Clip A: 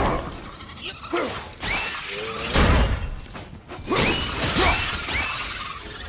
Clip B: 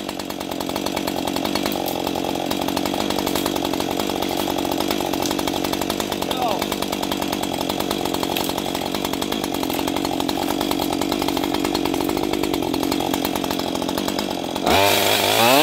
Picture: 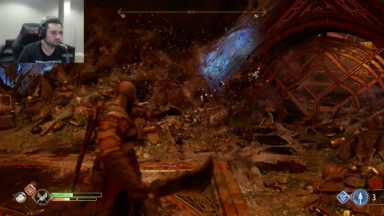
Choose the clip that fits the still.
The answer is A